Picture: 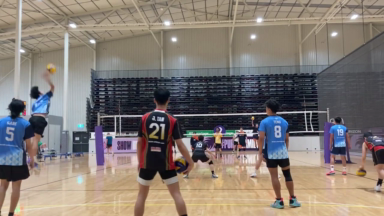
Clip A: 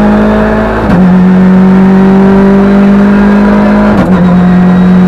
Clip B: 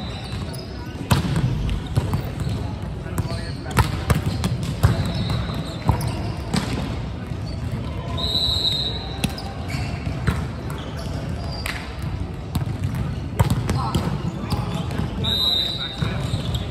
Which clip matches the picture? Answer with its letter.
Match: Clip B